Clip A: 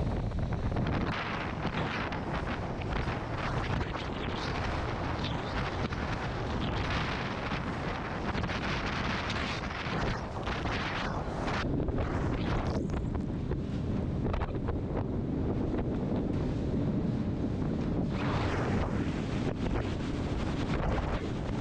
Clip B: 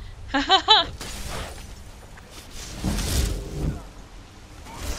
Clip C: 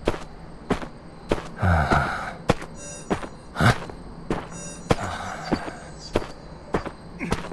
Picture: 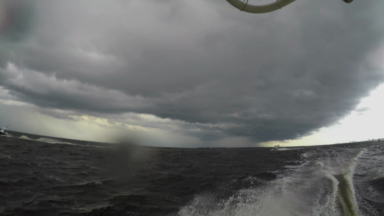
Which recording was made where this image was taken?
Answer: A